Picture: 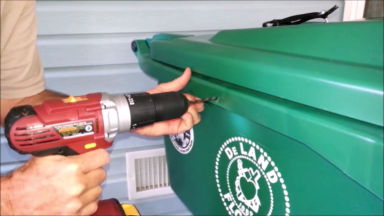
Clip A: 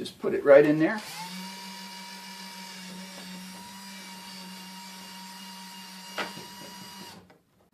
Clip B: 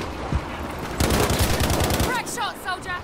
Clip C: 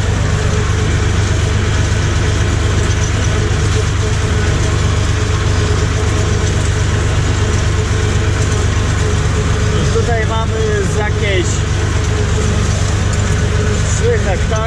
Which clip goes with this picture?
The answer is A